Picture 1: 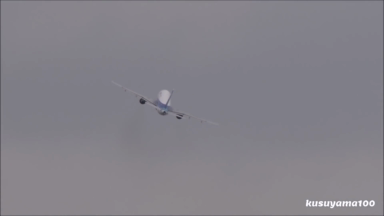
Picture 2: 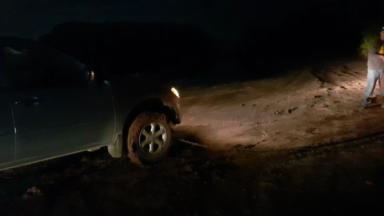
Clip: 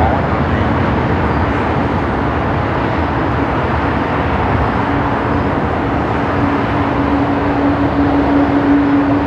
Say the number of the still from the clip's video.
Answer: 1